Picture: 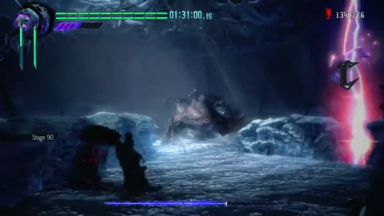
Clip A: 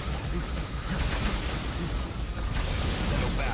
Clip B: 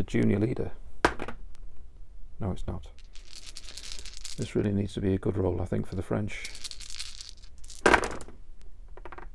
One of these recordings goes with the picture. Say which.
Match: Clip A